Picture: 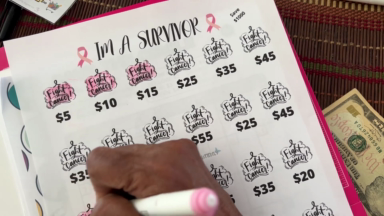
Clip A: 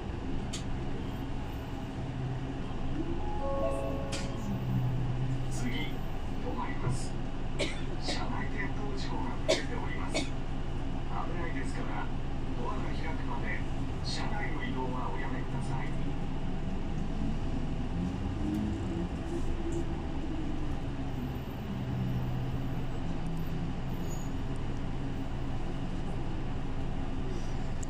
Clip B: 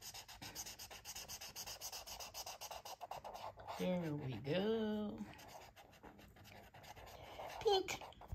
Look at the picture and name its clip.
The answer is B